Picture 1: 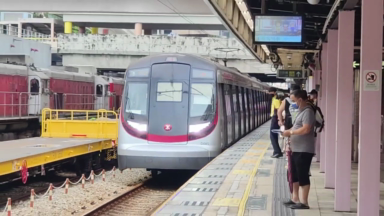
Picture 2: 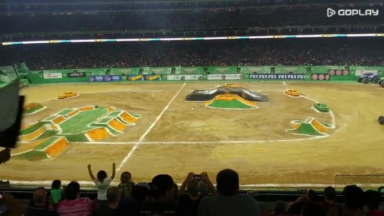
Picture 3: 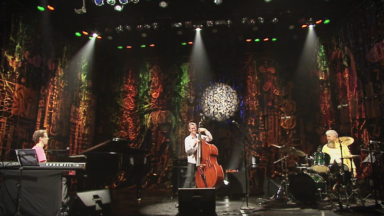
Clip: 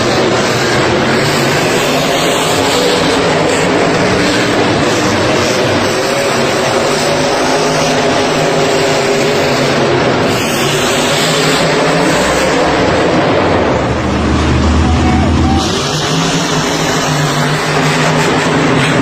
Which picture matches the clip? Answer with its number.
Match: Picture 2